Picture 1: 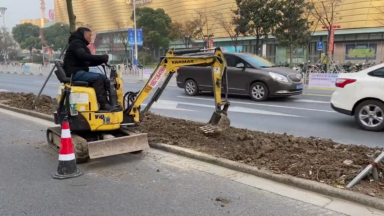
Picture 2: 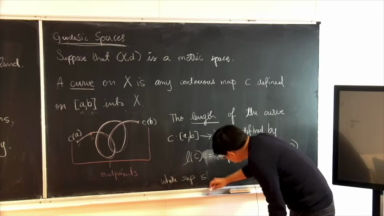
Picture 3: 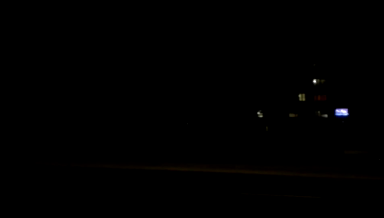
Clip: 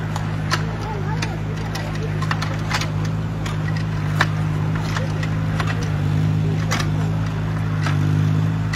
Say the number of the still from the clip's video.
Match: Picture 1